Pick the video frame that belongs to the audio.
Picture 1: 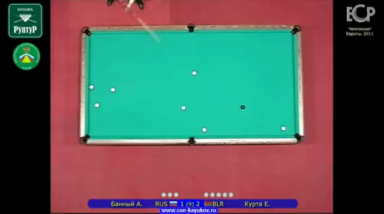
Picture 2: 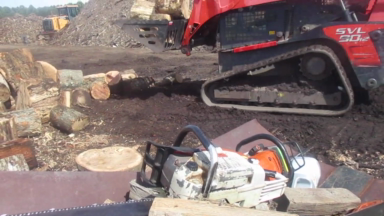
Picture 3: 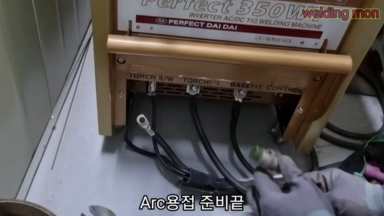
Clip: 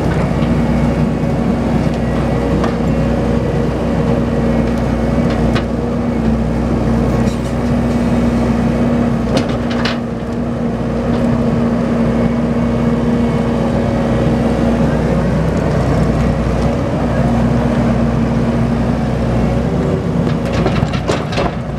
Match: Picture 2